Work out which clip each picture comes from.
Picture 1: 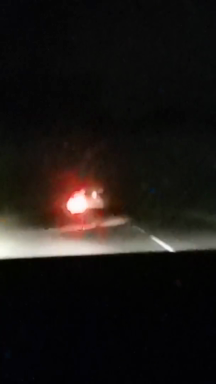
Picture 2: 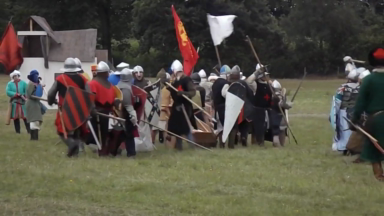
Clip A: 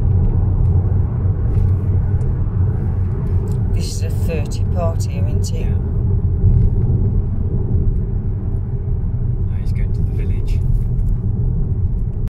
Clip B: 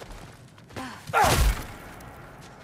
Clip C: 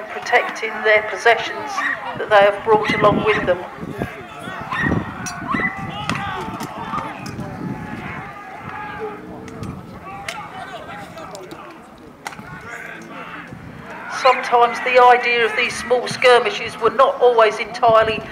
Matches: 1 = A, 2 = C